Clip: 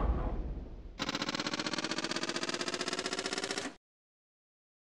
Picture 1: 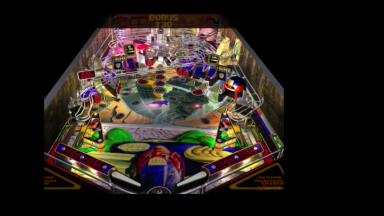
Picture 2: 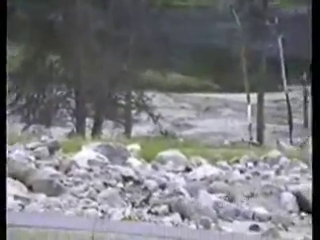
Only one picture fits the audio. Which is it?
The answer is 1